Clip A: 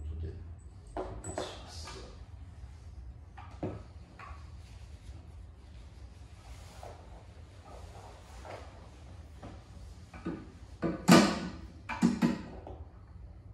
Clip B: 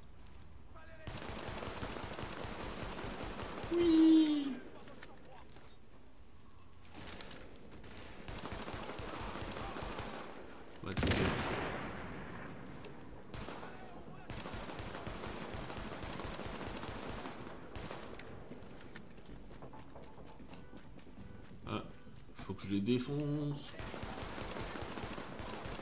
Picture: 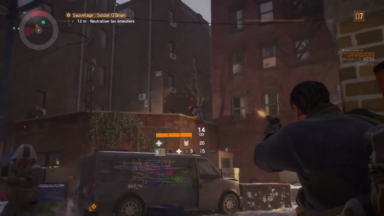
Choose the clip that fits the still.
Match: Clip B